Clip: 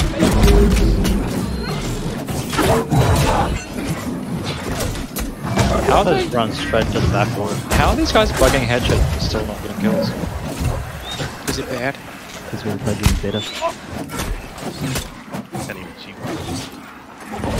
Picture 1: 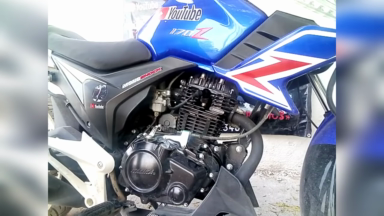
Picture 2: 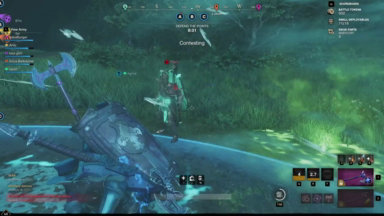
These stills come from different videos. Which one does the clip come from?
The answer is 2